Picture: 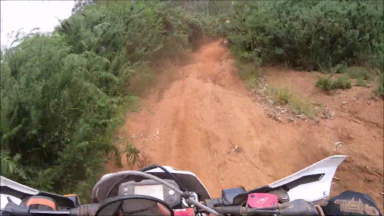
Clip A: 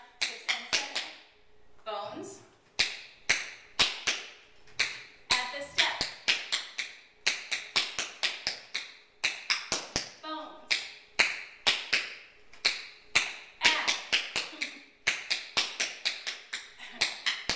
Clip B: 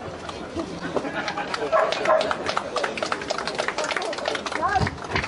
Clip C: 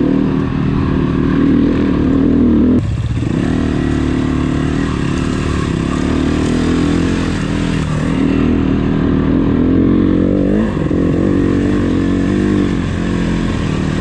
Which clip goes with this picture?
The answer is C